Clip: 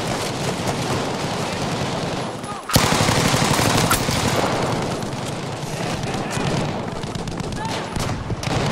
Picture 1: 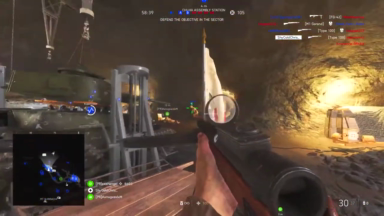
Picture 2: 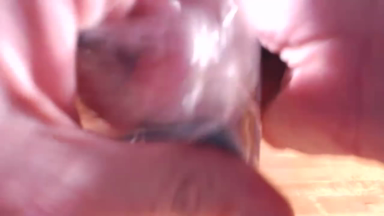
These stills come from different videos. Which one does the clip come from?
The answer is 1